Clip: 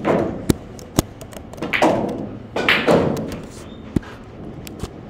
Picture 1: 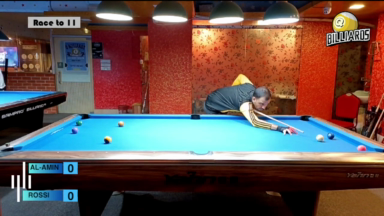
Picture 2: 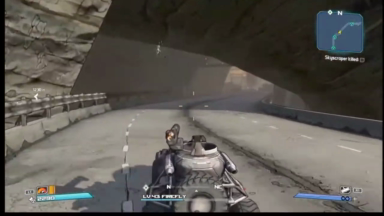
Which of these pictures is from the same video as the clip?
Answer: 1